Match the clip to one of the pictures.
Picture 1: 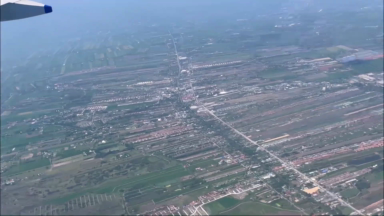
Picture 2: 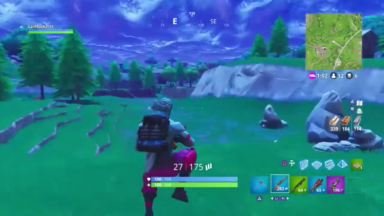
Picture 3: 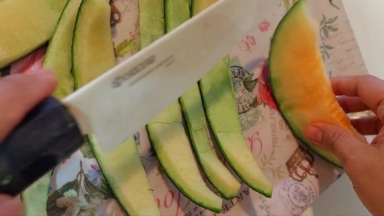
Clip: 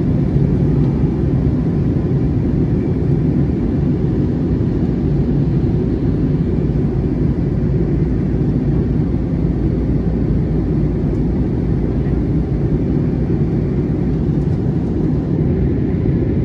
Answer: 1